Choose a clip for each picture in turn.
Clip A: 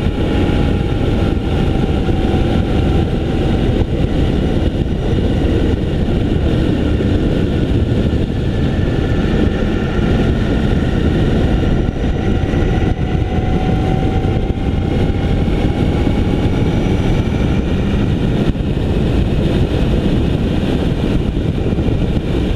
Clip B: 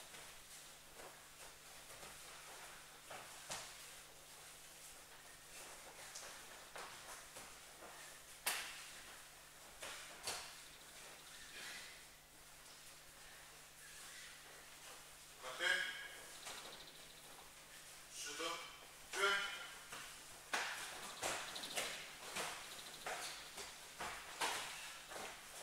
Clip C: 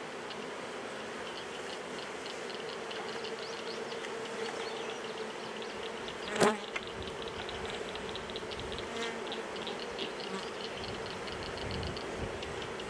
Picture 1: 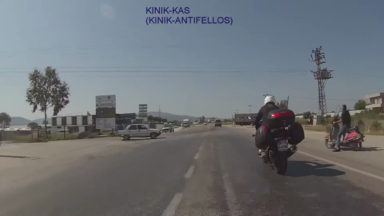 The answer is A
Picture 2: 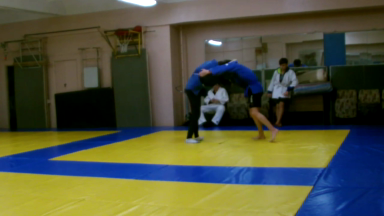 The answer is B